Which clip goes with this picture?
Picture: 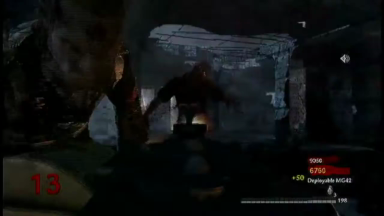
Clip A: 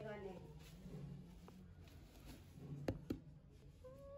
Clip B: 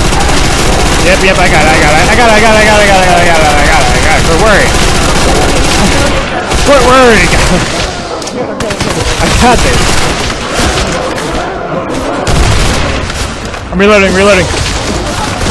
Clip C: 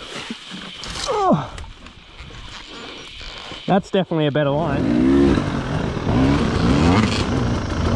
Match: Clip B